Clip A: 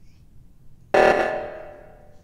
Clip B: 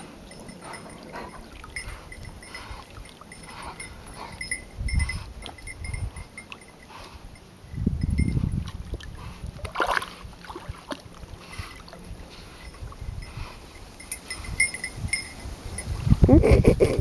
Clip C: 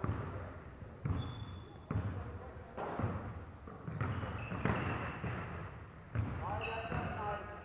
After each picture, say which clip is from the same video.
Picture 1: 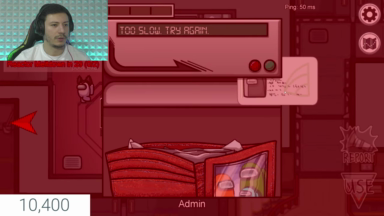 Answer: A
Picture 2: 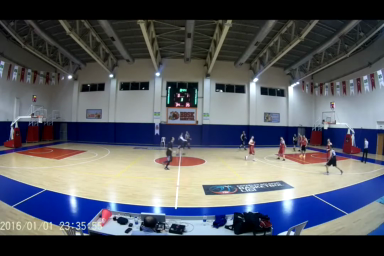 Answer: C